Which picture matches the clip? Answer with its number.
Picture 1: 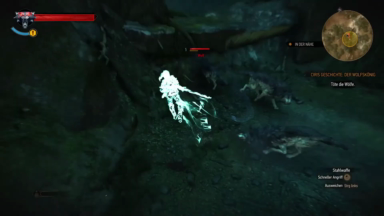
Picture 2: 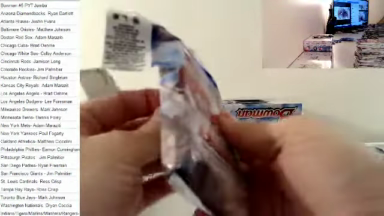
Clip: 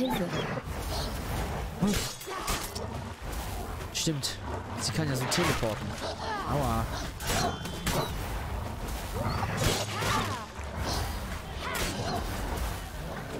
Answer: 1